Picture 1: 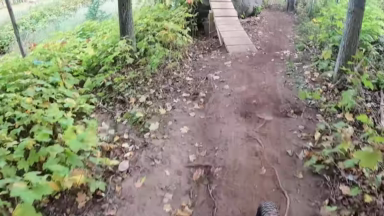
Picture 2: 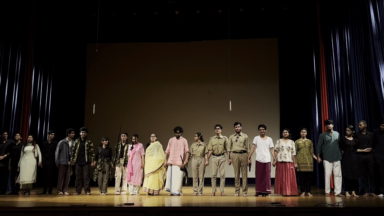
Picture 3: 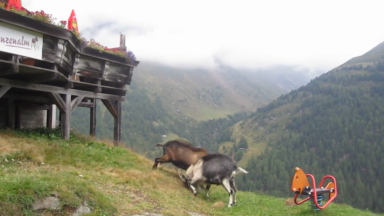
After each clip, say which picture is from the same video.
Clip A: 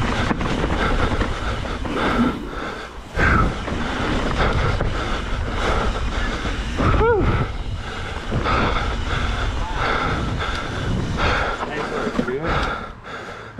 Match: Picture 1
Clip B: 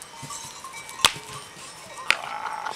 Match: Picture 3